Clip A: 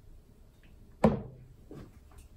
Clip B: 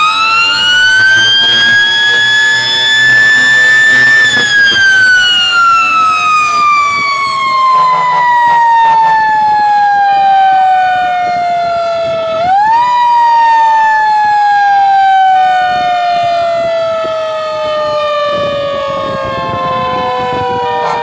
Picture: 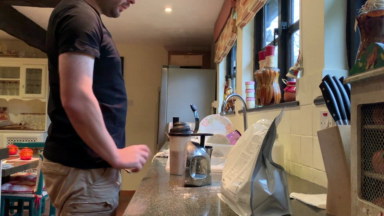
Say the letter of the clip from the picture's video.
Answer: A